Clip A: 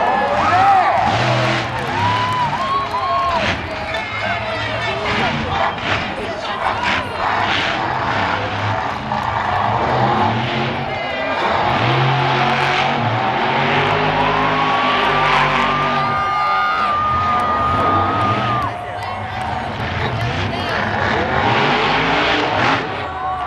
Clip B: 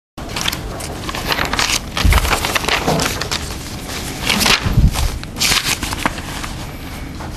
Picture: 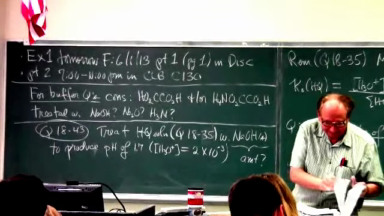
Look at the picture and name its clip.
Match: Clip B